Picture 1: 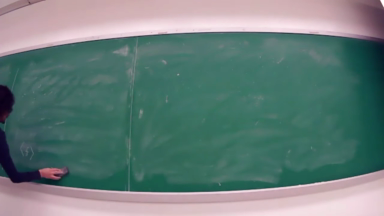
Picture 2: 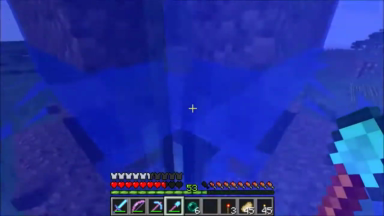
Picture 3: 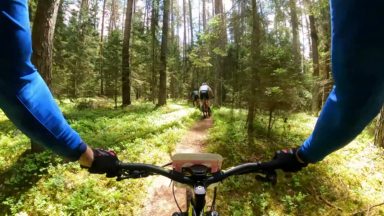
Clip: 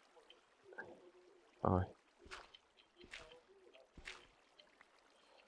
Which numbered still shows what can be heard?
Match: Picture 2